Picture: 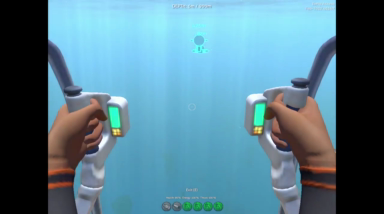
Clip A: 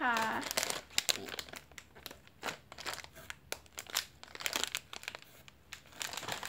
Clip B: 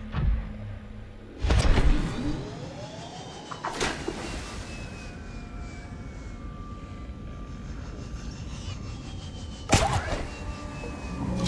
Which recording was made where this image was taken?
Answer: B